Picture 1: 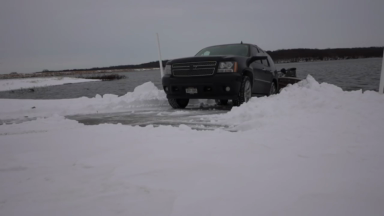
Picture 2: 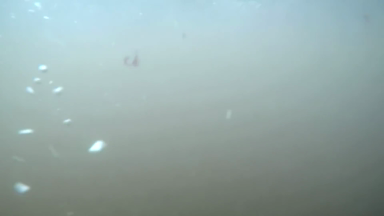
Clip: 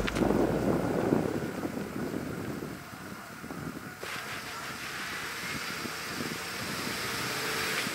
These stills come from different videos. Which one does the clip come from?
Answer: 1